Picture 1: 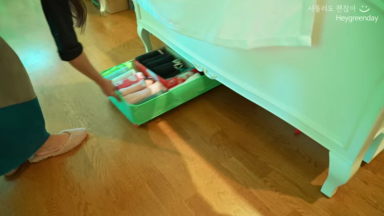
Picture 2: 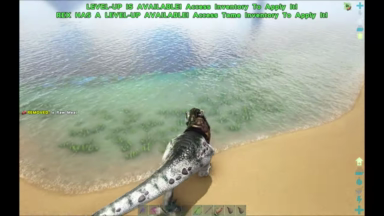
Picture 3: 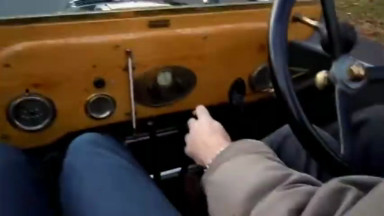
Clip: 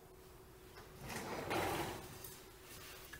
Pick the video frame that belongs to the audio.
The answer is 1